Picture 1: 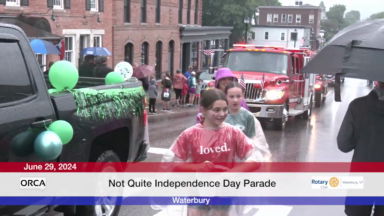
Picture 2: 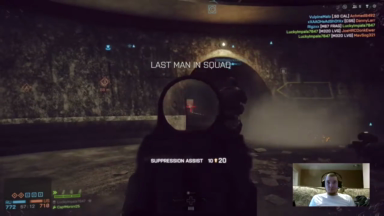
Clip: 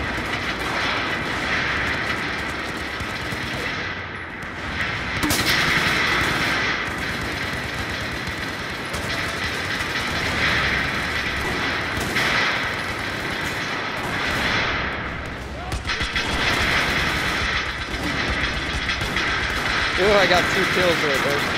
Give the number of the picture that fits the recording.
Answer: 2